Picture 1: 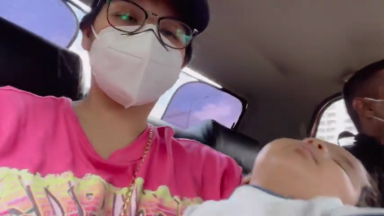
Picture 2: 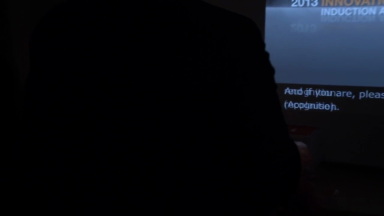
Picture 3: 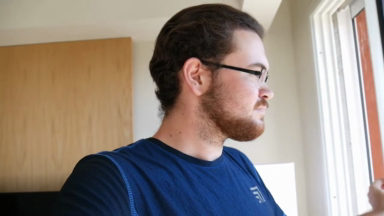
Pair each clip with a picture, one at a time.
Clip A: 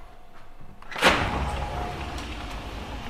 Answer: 3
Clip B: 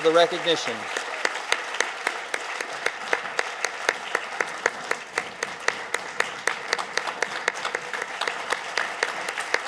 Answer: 2